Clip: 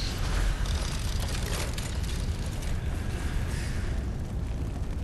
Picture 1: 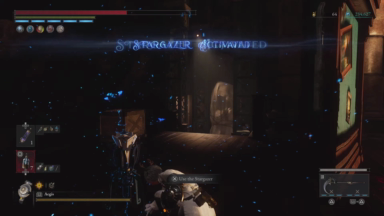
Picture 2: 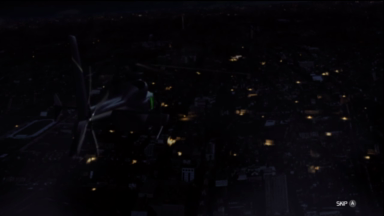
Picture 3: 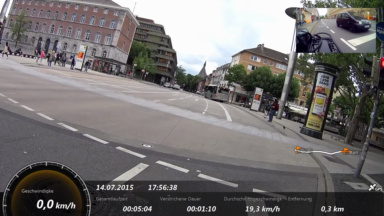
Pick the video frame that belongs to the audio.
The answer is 1